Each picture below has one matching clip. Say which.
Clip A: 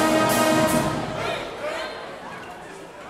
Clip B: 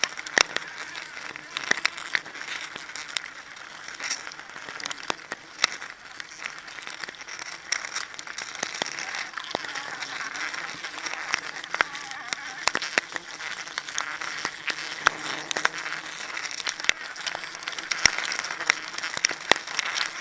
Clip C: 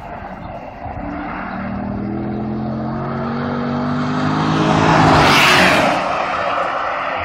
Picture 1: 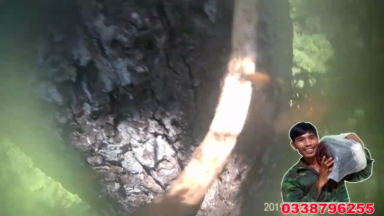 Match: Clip B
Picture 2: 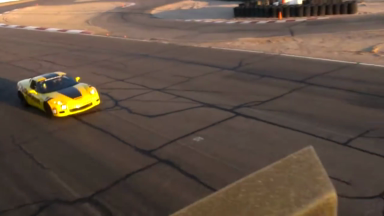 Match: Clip C